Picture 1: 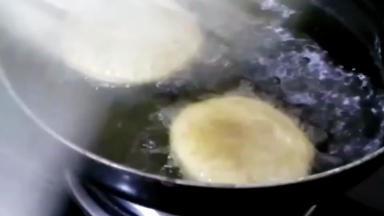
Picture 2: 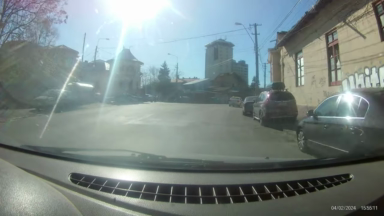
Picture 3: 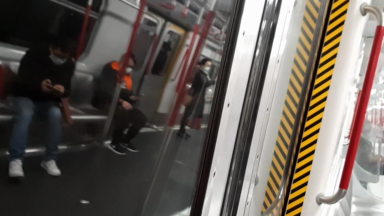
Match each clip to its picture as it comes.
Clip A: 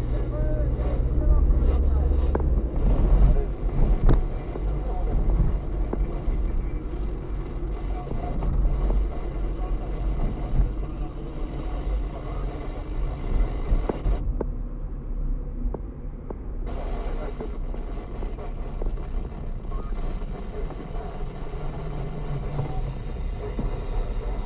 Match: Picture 2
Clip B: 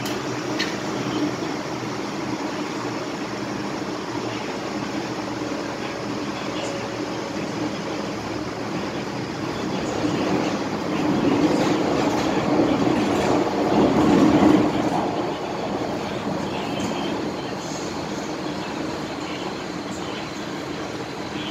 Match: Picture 3